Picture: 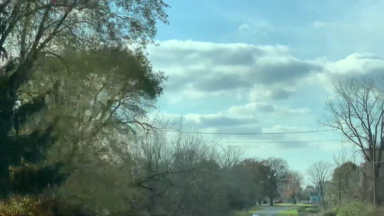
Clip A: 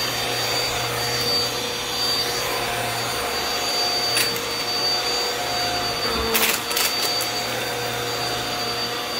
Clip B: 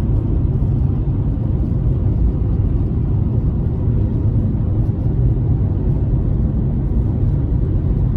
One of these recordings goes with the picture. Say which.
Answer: B